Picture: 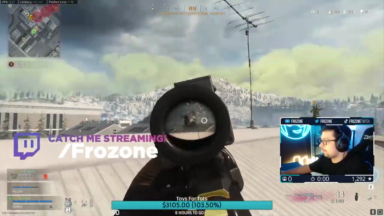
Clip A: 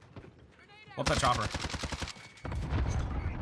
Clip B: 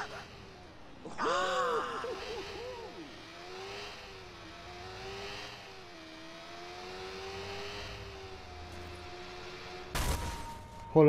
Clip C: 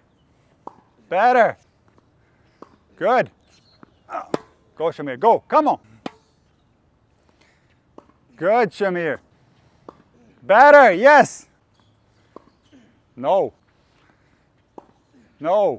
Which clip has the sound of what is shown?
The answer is A